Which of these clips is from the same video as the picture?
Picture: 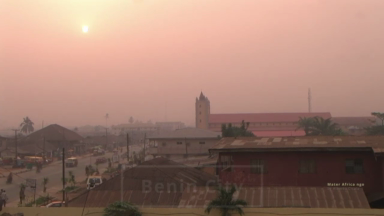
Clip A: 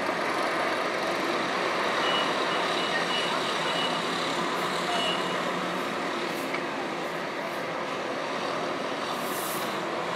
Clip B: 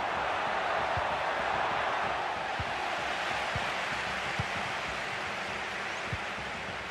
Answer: A